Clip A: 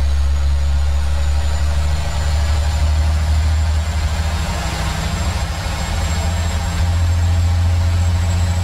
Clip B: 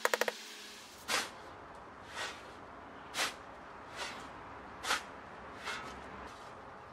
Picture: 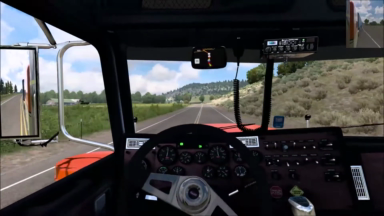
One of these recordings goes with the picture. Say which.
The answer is A